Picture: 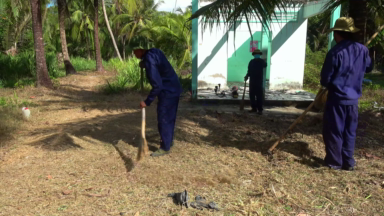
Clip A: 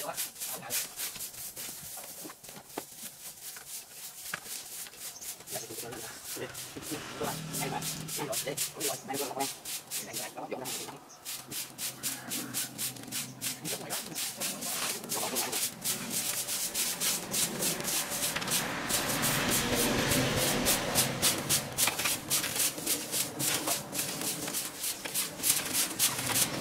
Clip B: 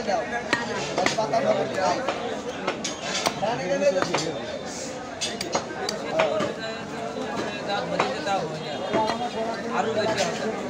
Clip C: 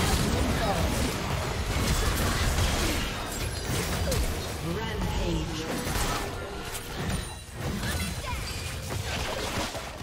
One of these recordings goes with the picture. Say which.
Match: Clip A